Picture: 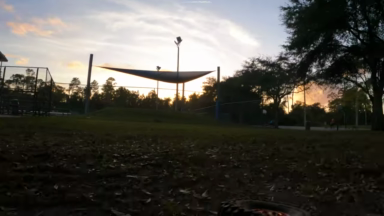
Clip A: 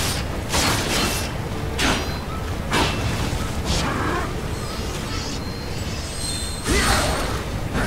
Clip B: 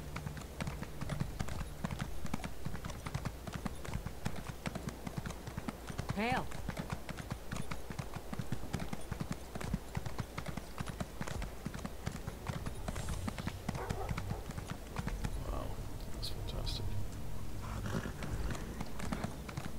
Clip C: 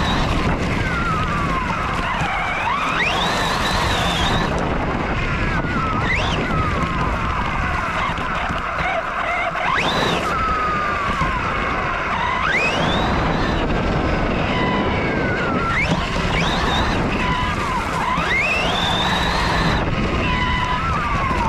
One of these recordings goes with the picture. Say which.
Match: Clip C